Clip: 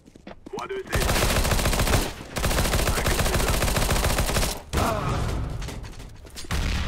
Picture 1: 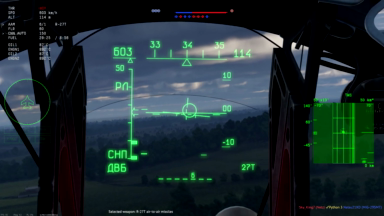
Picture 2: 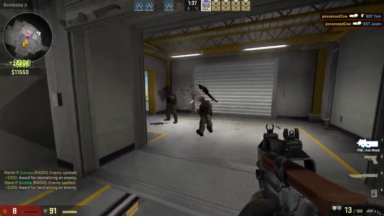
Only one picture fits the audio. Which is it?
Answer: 2